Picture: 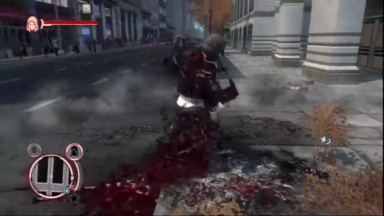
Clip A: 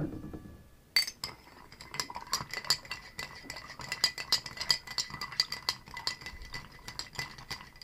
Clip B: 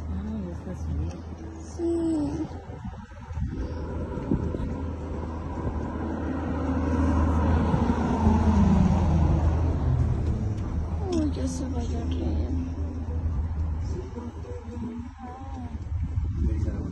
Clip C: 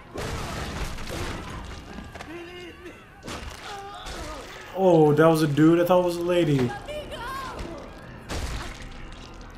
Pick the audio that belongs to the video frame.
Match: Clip C